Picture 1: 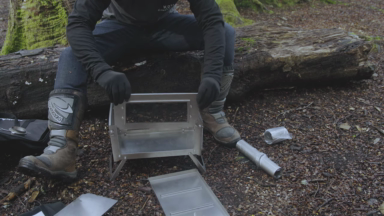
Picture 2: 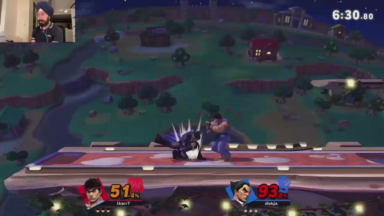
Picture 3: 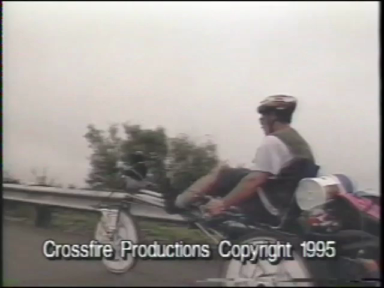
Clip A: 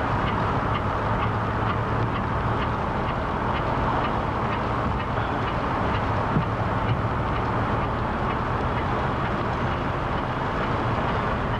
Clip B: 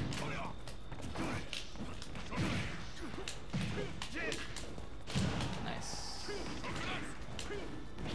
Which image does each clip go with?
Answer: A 3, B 2